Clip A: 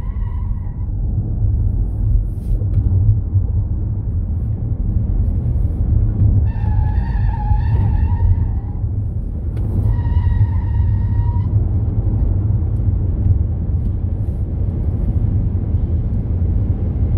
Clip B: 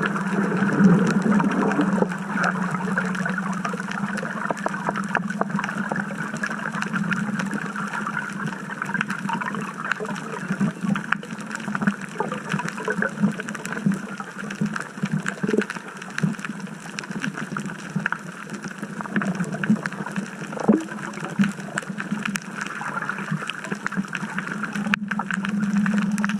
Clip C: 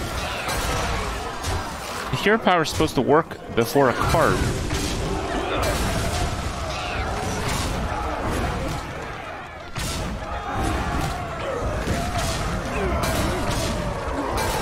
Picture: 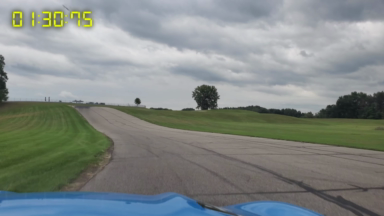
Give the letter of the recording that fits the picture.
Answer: A